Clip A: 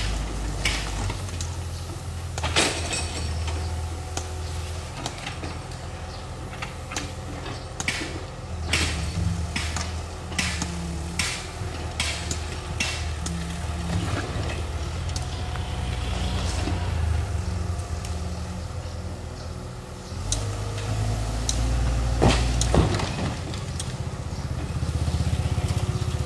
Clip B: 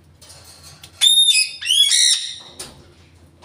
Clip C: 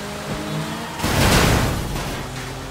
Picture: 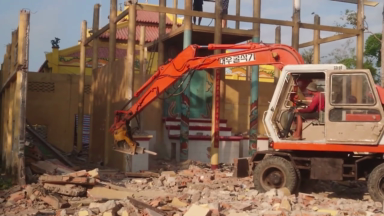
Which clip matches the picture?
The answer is A